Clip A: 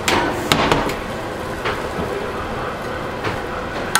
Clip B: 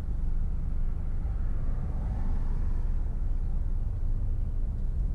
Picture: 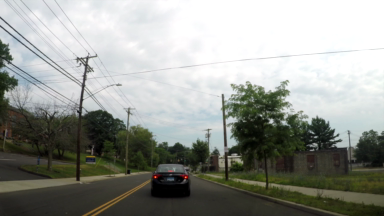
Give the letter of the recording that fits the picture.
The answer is B